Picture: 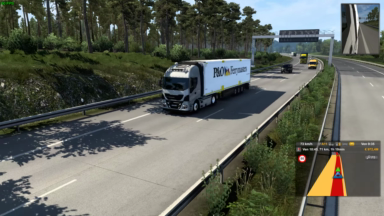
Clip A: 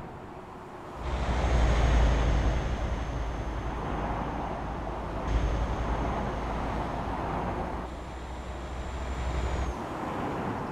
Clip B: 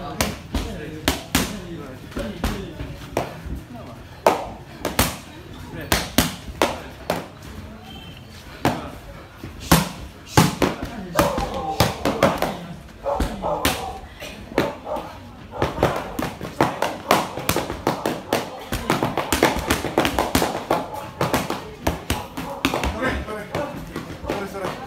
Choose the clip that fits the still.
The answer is A